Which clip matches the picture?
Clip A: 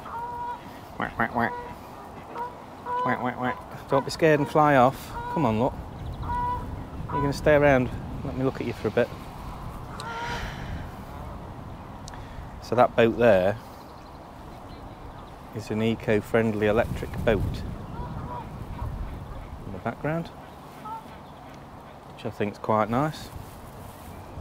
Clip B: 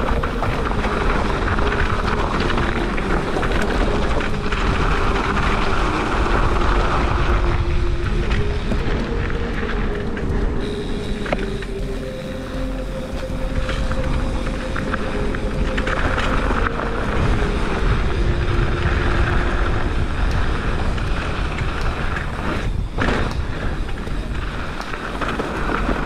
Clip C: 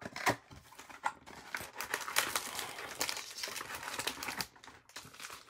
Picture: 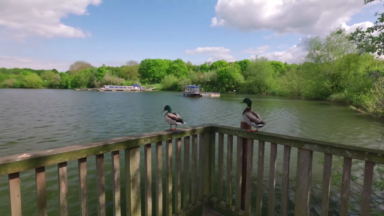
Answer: A